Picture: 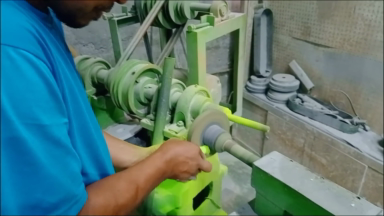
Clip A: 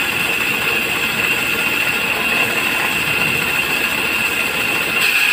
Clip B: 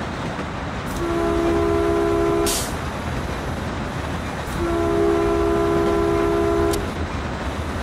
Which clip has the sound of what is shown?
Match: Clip A